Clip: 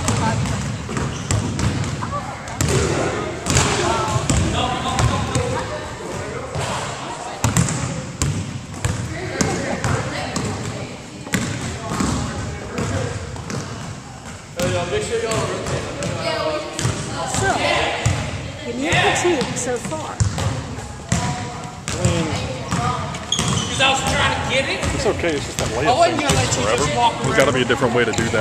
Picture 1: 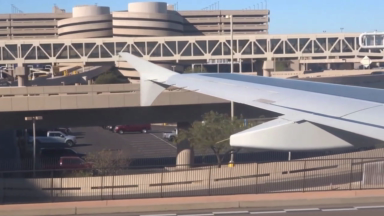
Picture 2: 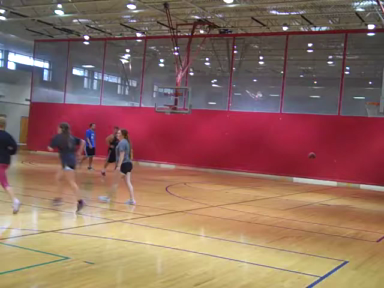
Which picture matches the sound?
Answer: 2